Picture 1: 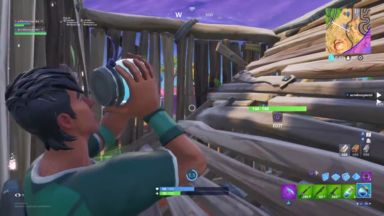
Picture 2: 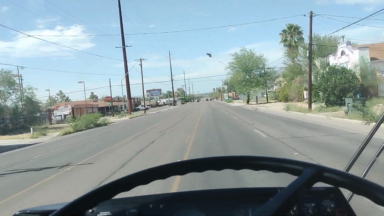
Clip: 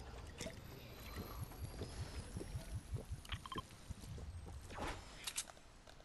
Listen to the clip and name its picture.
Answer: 1